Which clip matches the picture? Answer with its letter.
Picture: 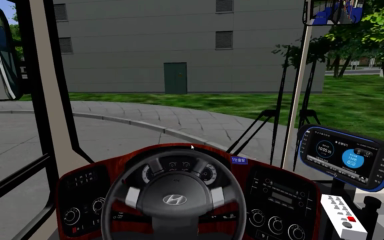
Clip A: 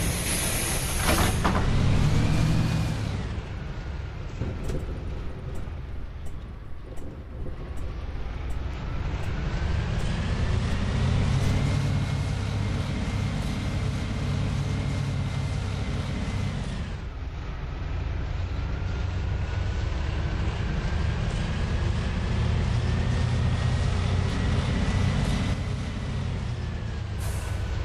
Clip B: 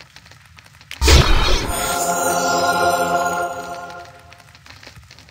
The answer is A